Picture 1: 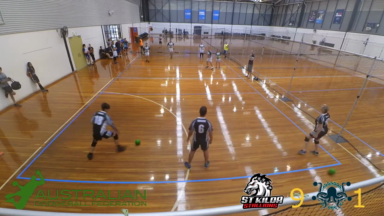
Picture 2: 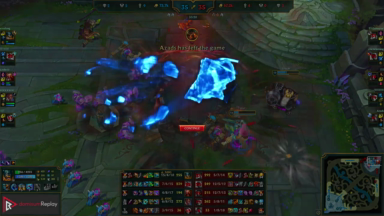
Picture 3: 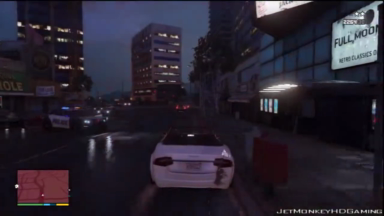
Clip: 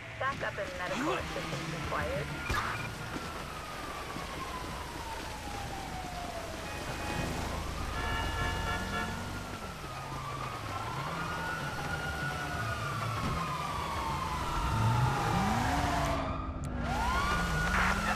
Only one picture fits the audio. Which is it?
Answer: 3